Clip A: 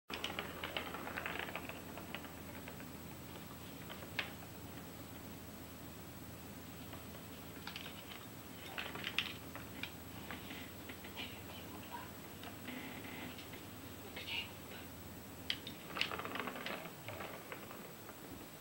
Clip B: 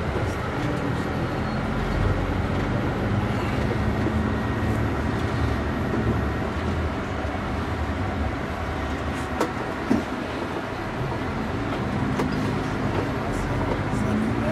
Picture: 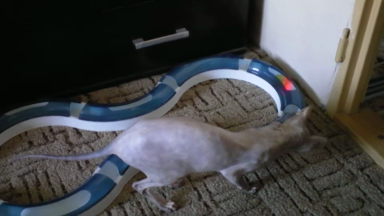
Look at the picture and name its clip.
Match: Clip A